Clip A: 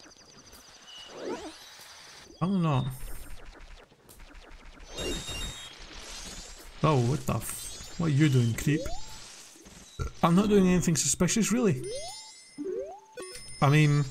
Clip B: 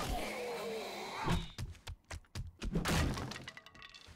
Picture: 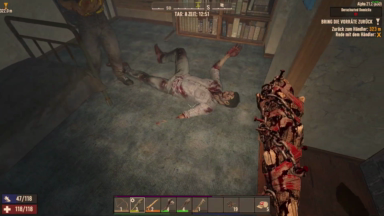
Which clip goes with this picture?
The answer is B